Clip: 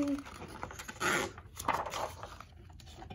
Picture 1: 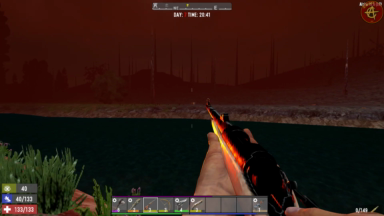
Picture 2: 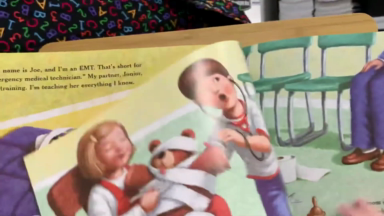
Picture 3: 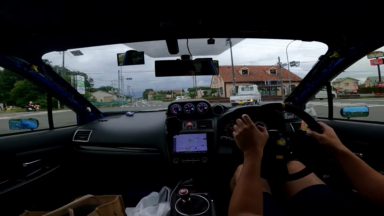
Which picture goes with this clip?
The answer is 2